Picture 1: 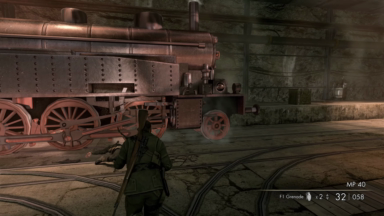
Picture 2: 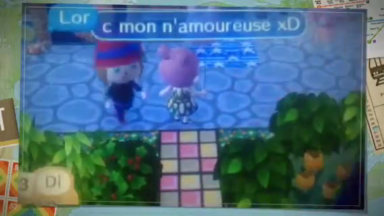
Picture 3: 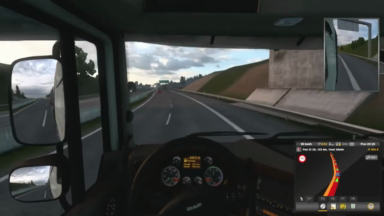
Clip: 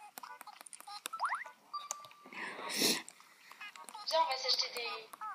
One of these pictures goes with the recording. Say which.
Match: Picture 2